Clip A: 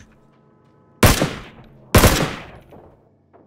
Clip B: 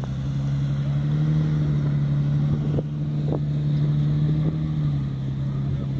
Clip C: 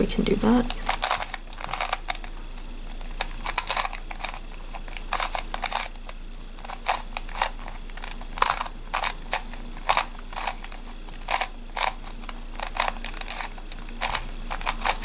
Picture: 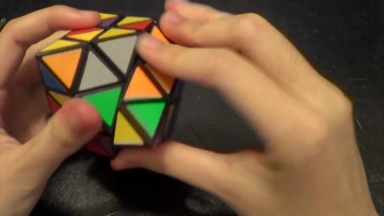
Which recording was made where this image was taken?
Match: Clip C